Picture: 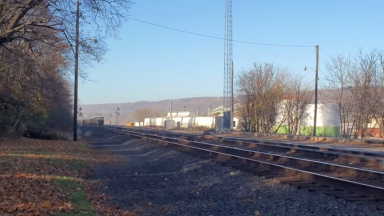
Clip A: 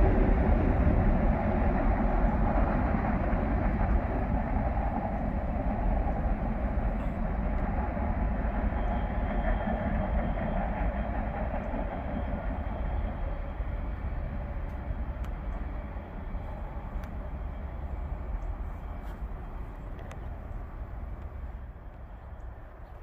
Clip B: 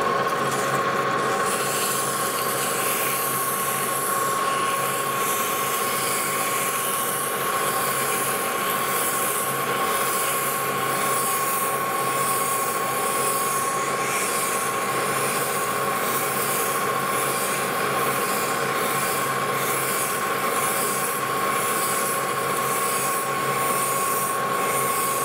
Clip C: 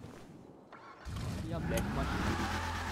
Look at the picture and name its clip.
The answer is A